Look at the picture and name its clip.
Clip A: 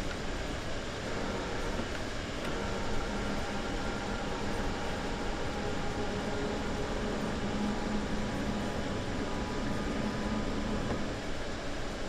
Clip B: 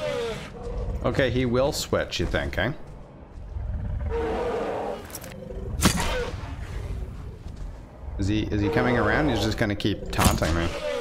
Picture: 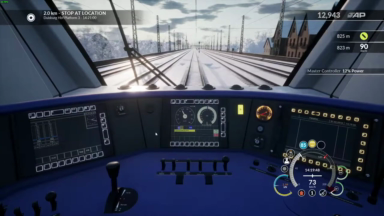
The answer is A